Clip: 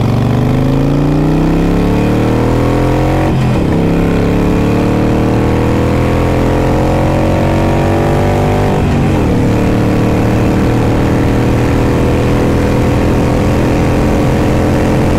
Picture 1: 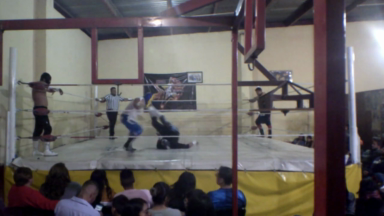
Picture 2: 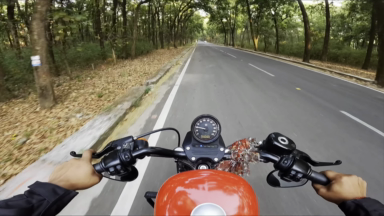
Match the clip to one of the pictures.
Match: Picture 2